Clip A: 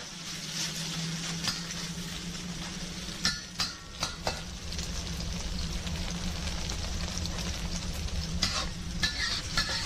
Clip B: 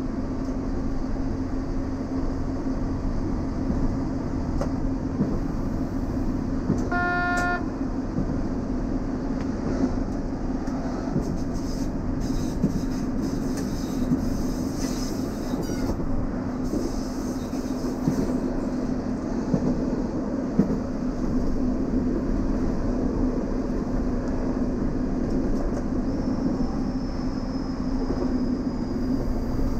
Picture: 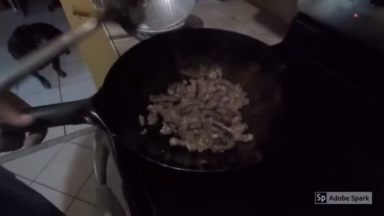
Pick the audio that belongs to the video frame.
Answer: A